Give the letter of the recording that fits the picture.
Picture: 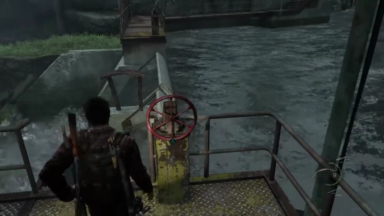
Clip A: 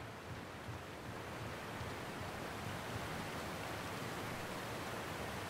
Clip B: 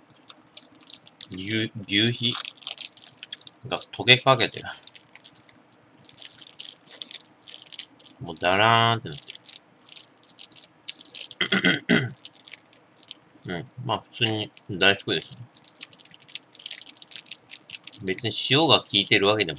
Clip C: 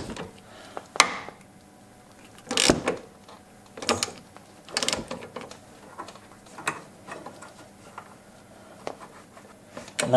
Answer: A